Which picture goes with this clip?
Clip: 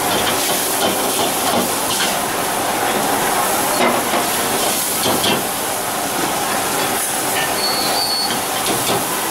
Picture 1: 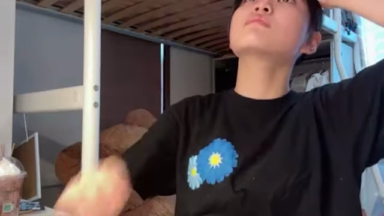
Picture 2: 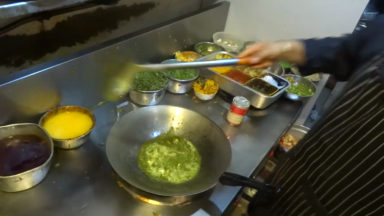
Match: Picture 2